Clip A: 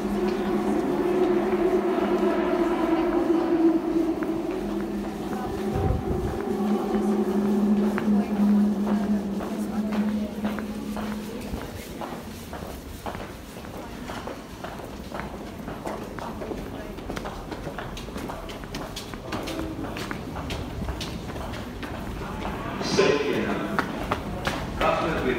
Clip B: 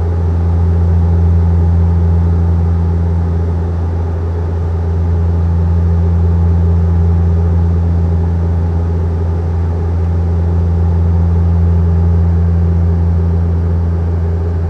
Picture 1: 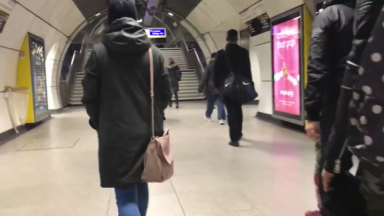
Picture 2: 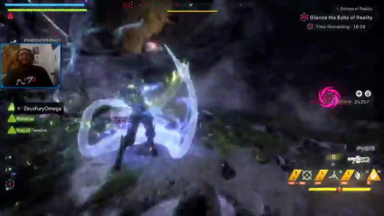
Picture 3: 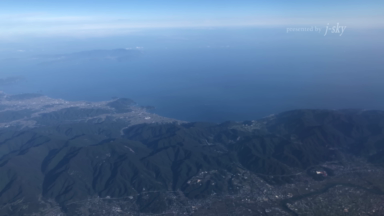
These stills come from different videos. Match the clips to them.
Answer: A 1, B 3